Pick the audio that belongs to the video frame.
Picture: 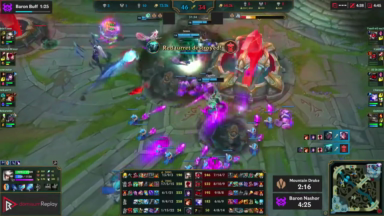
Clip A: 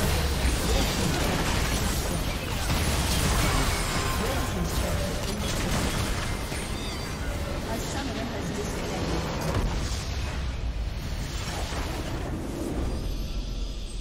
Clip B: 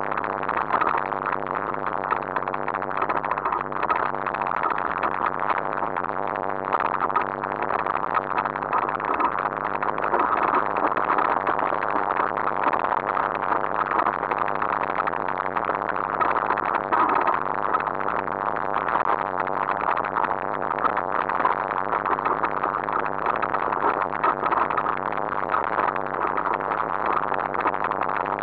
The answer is A